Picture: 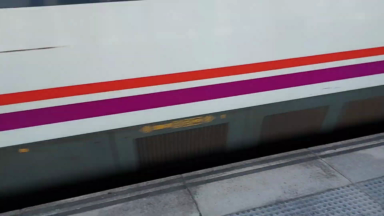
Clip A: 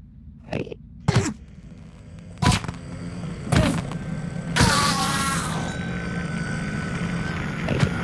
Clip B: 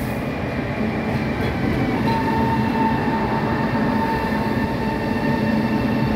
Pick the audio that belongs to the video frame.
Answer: B